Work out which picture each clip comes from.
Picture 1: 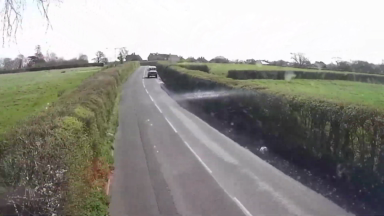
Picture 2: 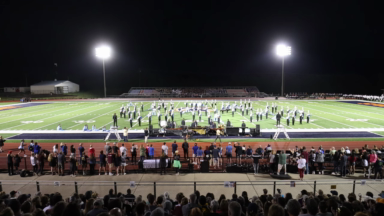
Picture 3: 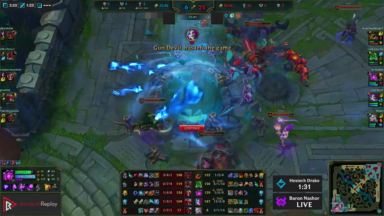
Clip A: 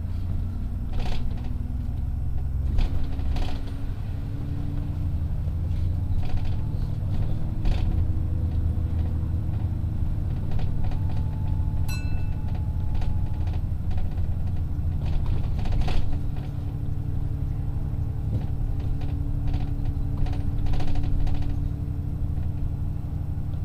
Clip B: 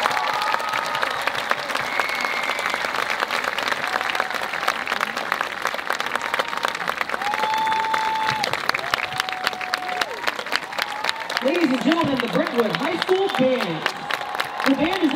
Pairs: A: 1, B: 2